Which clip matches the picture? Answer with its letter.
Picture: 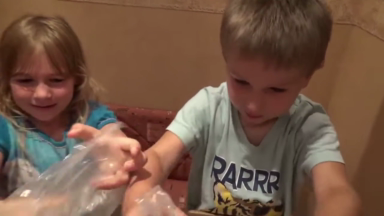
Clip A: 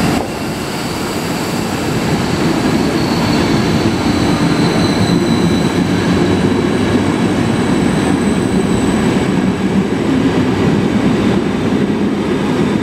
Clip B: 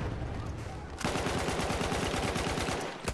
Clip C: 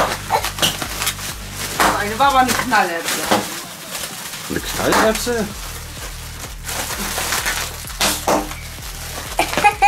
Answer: C